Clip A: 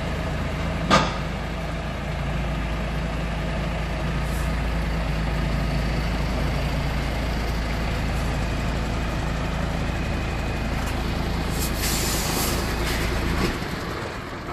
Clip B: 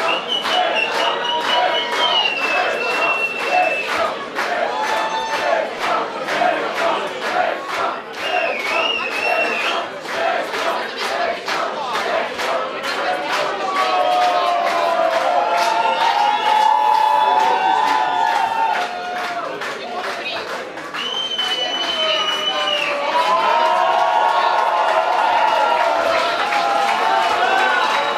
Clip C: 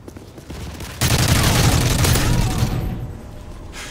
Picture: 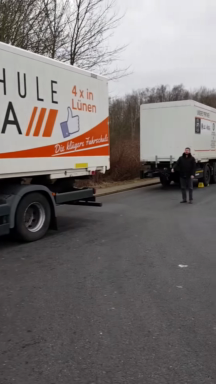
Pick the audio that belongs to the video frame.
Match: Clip A